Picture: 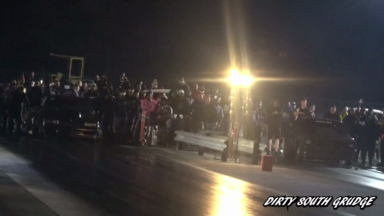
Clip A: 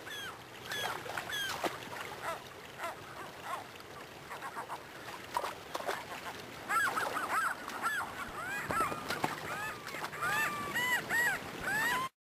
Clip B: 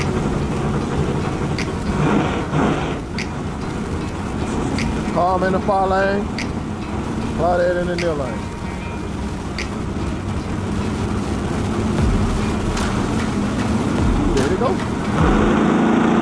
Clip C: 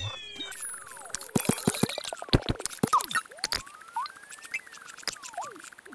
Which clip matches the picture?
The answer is B